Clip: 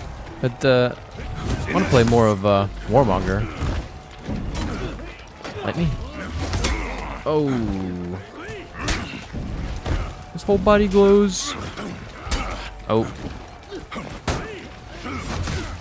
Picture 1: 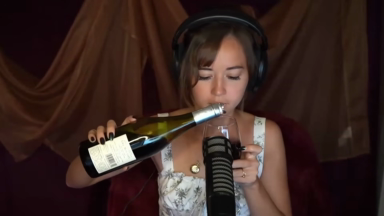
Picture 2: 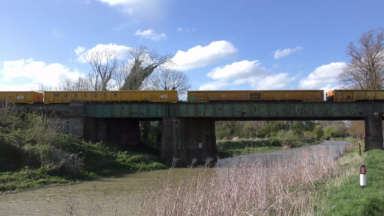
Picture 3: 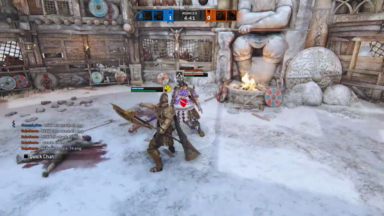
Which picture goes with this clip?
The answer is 3